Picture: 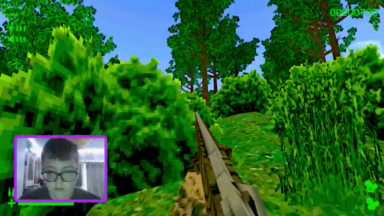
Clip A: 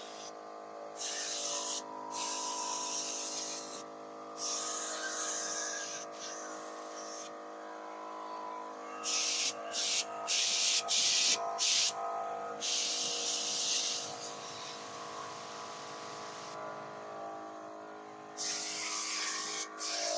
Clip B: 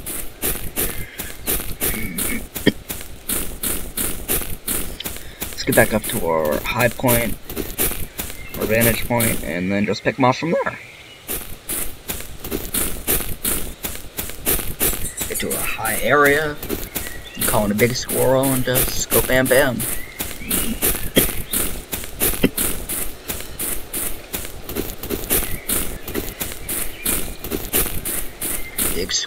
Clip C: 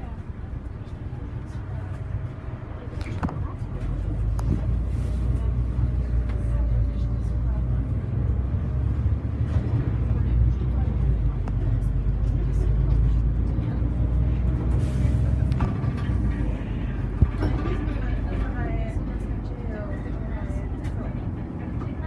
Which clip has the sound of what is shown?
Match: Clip B